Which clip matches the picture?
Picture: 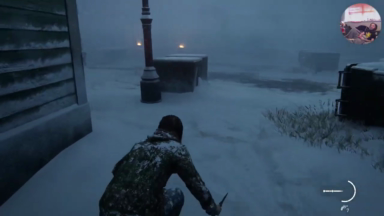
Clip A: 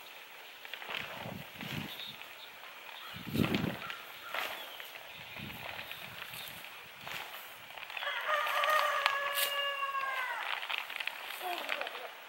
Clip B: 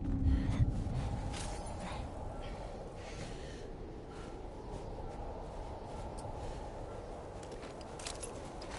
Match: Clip B